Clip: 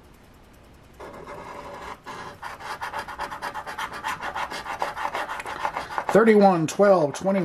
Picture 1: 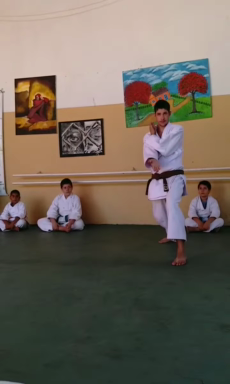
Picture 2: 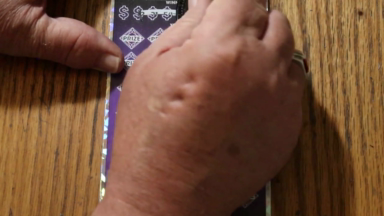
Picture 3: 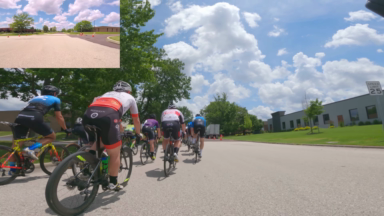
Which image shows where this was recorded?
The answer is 2